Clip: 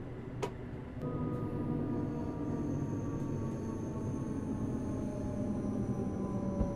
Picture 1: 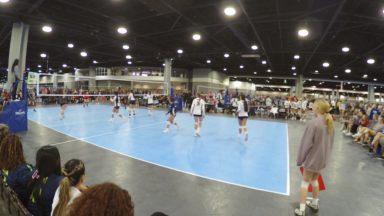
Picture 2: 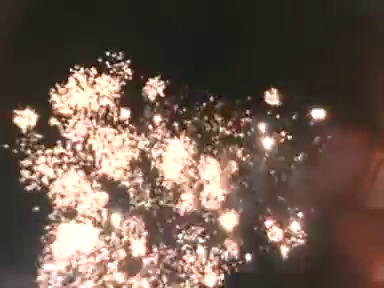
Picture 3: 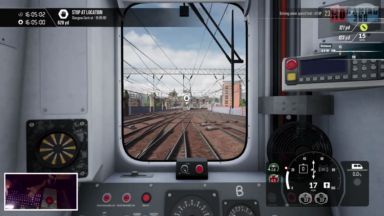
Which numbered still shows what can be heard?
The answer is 3